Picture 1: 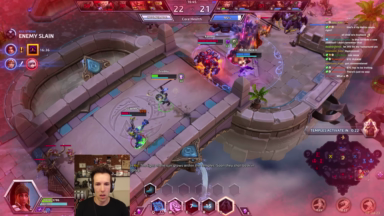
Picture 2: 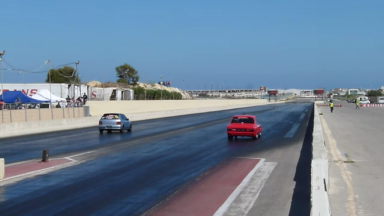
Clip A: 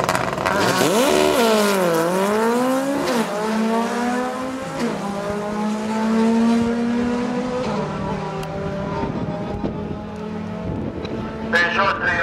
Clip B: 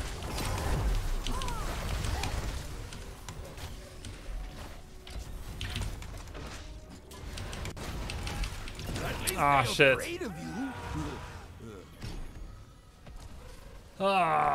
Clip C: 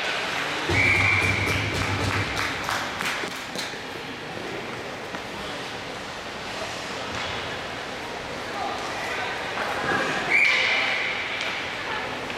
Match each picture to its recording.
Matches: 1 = B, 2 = A